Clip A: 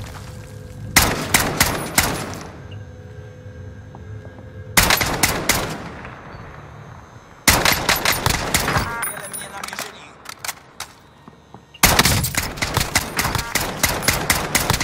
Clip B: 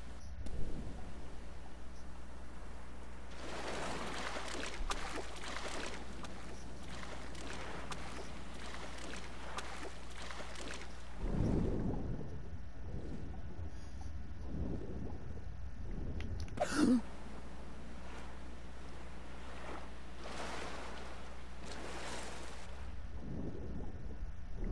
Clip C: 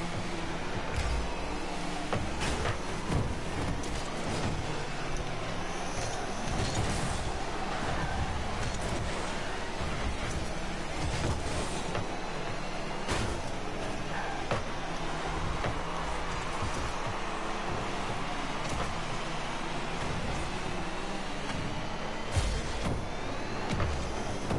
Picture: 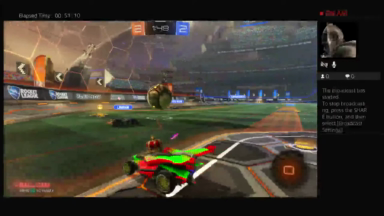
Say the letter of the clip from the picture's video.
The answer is C